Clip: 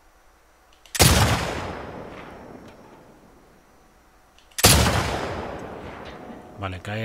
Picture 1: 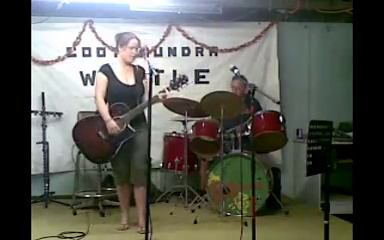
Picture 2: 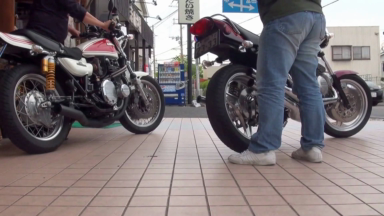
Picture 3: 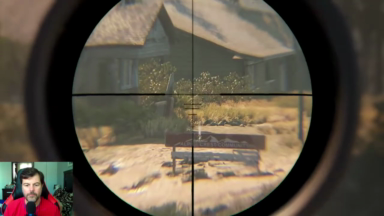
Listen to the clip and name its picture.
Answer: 3